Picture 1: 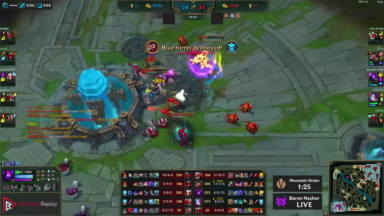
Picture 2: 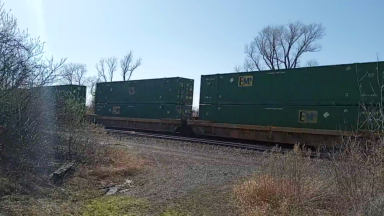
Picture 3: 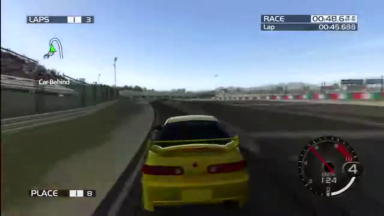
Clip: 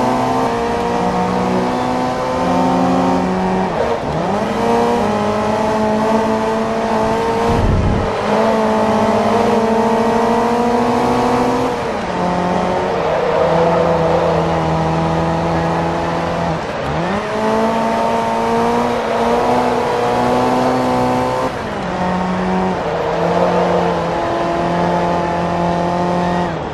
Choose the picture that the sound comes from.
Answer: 3